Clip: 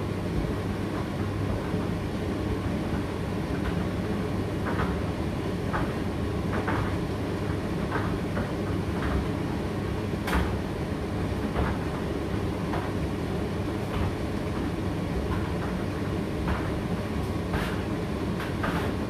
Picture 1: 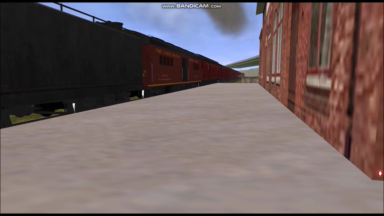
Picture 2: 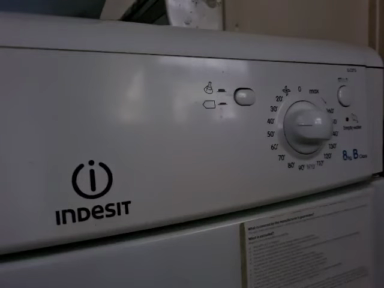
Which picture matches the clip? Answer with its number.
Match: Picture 2